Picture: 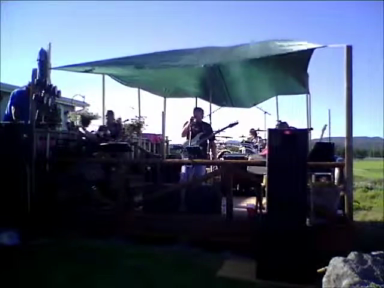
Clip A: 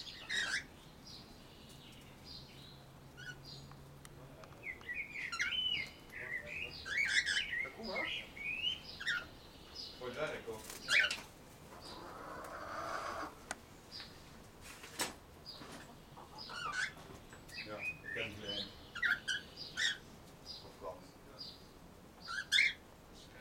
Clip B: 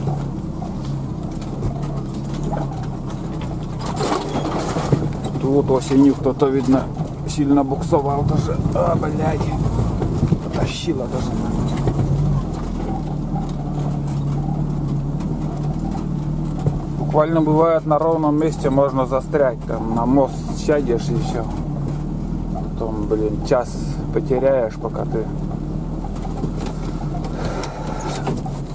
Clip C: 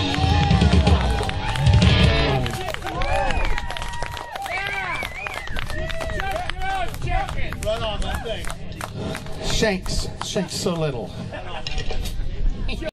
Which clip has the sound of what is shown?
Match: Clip C